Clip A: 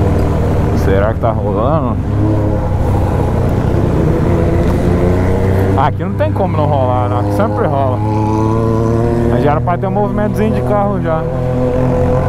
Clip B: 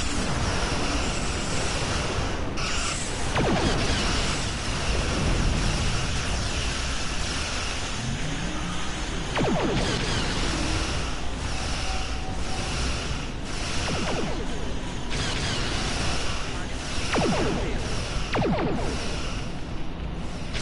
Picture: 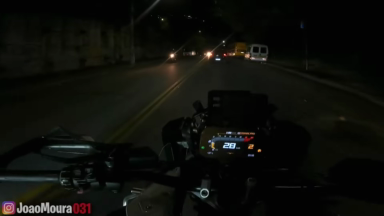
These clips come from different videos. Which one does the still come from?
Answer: A